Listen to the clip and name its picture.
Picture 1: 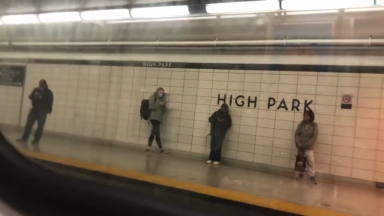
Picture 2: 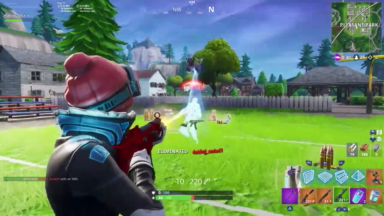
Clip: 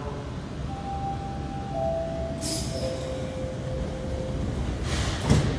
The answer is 1